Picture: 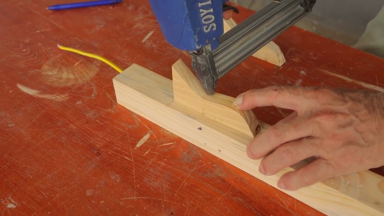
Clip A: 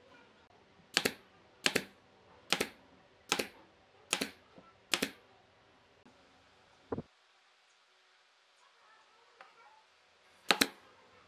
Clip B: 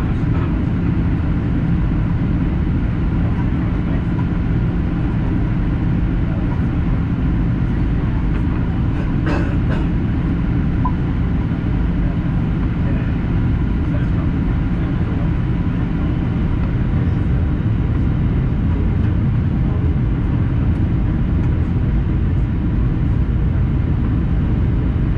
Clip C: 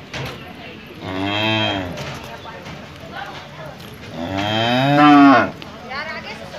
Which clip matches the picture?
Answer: A